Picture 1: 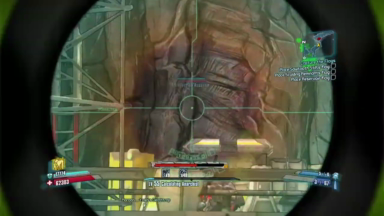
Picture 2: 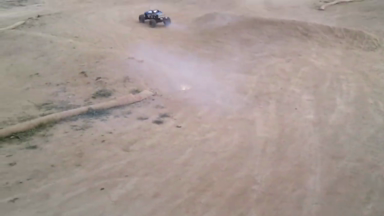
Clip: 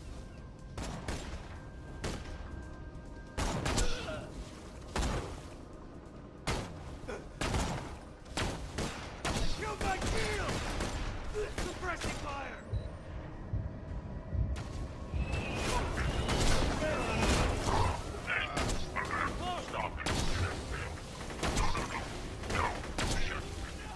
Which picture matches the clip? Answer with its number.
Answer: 1